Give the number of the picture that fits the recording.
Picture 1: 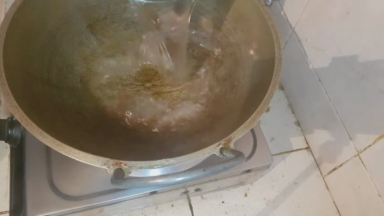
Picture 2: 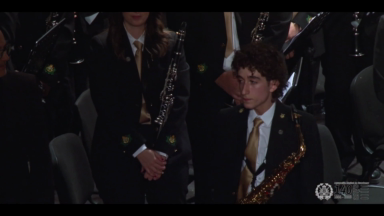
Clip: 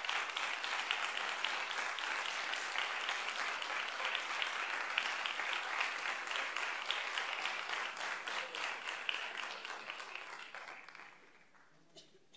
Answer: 2